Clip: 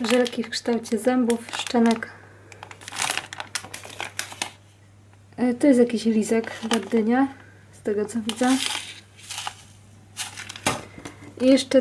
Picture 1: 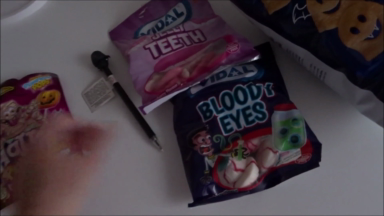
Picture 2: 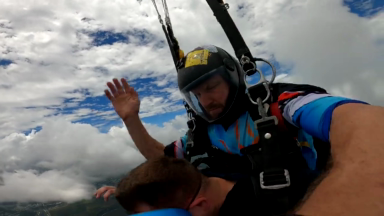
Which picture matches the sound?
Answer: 1